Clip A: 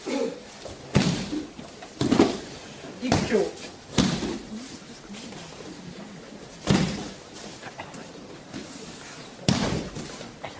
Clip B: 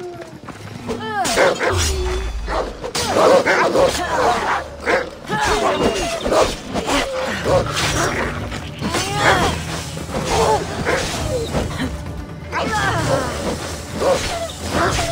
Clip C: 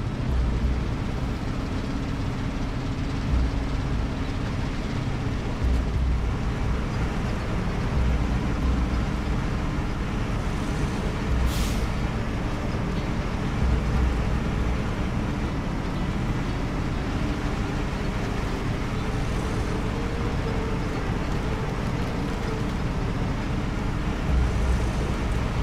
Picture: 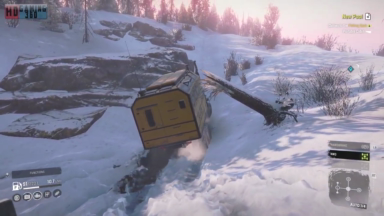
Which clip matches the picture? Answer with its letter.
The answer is C